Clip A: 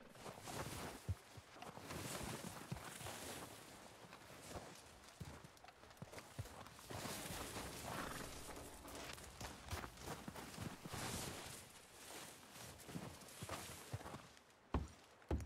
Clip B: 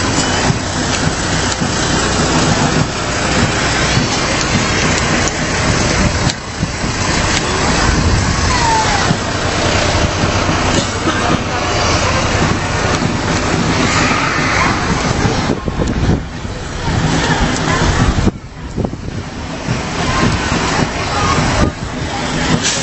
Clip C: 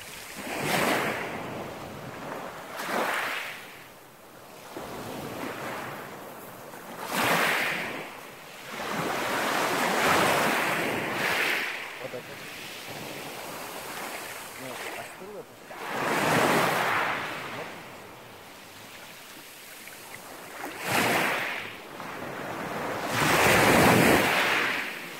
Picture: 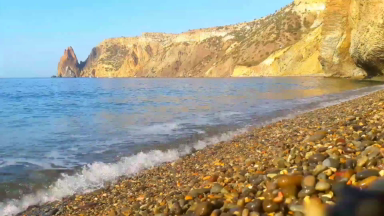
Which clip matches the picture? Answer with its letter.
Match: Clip C